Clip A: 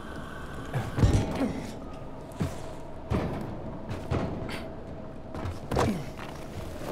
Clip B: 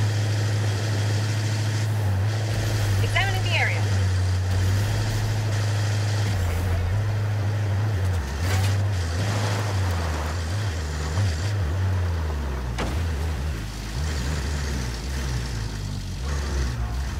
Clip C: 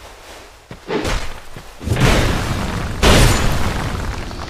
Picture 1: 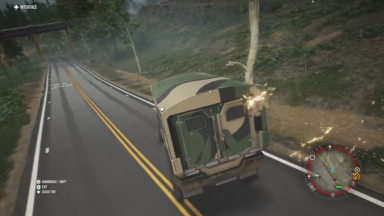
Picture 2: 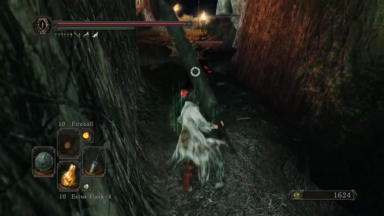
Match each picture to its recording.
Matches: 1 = B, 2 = C